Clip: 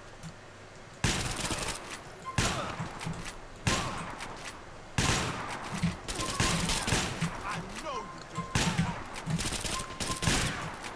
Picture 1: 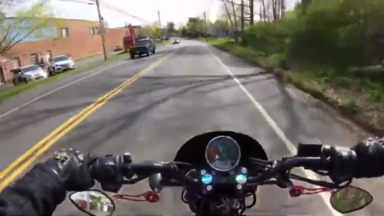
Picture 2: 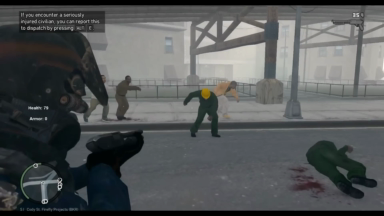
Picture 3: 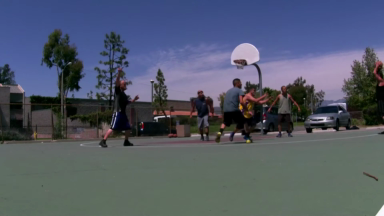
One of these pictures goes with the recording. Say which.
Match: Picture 2